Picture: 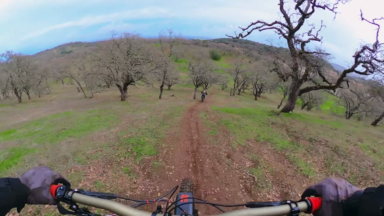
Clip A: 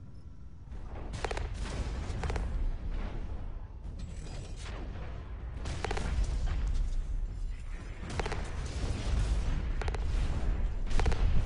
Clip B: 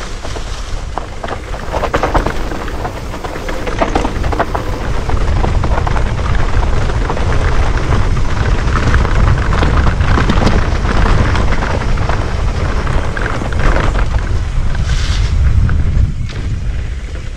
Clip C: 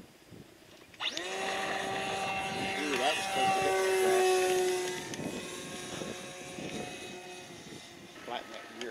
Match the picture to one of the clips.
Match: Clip B